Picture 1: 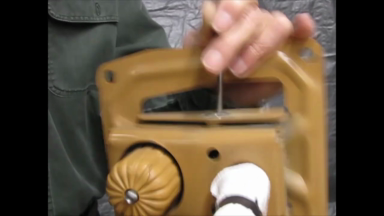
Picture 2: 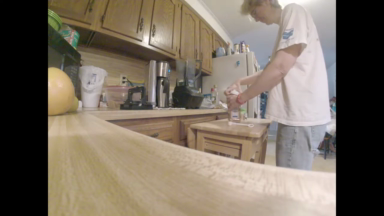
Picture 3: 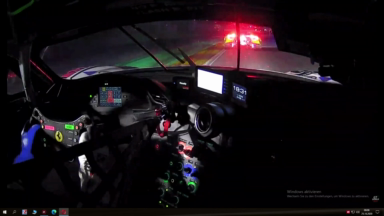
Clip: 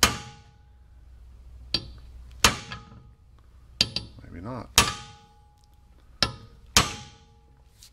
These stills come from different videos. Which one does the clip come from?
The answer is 1